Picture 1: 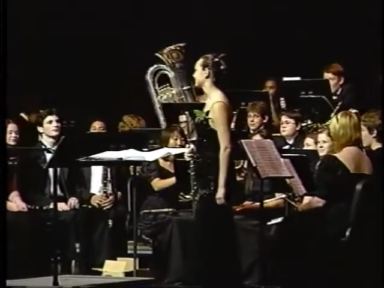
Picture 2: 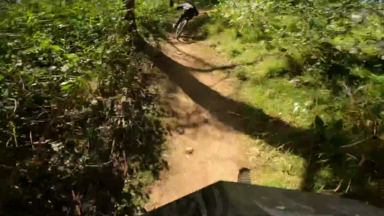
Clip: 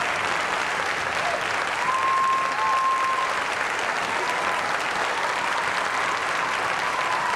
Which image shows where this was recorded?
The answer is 1